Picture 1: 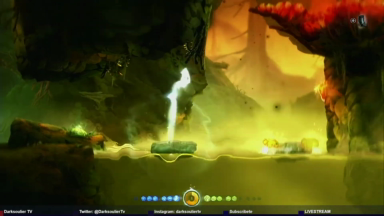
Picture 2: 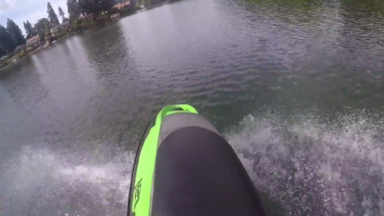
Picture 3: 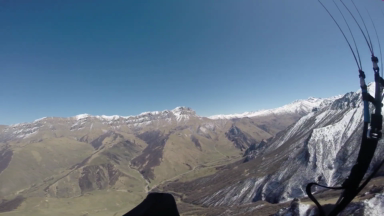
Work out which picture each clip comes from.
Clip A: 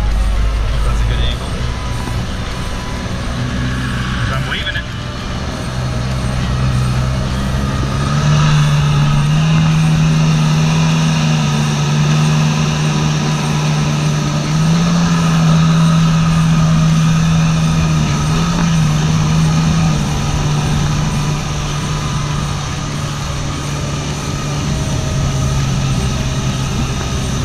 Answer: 2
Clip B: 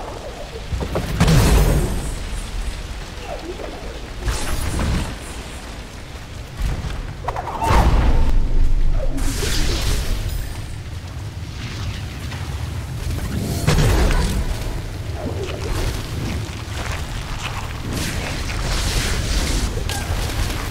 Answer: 1